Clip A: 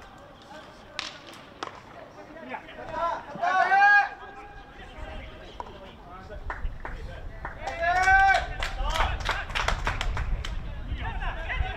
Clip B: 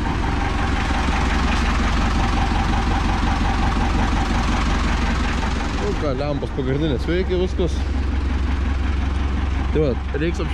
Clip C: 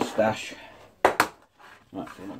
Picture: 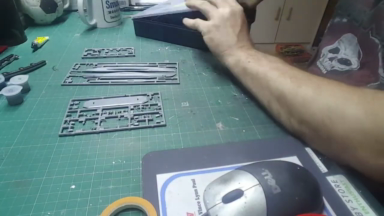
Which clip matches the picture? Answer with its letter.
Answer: C